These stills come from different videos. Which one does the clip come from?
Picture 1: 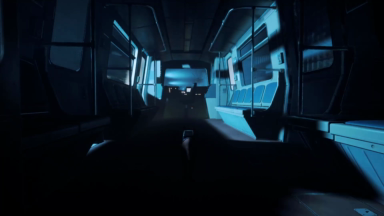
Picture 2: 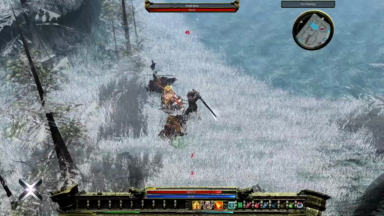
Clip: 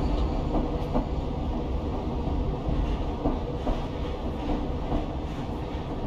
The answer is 1